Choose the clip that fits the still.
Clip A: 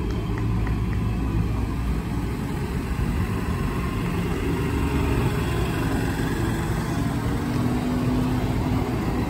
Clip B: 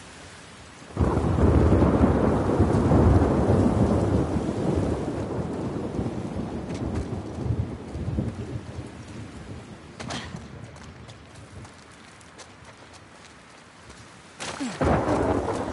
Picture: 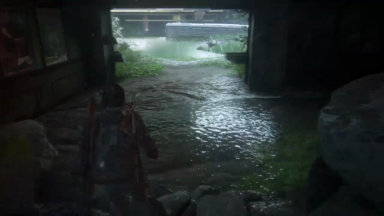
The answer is B